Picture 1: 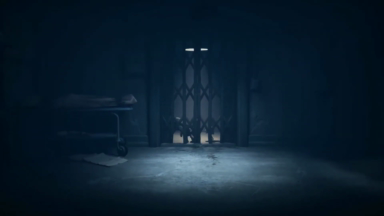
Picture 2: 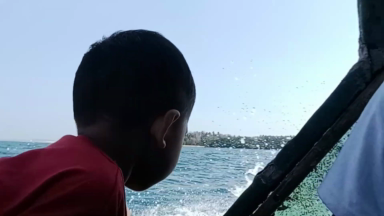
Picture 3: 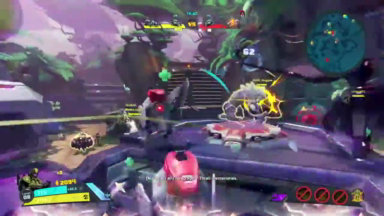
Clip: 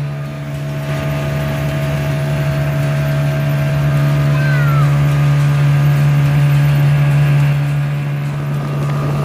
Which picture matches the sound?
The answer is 2